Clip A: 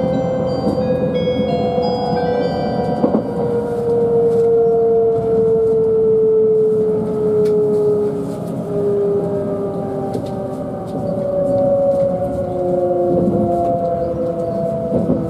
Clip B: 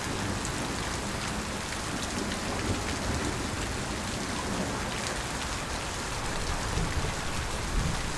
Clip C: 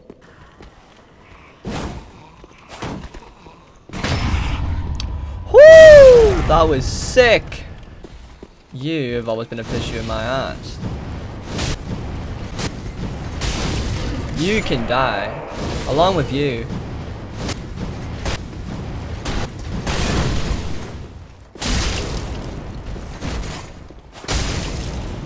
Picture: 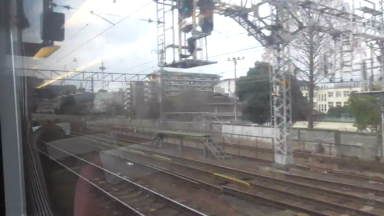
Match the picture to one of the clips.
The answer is A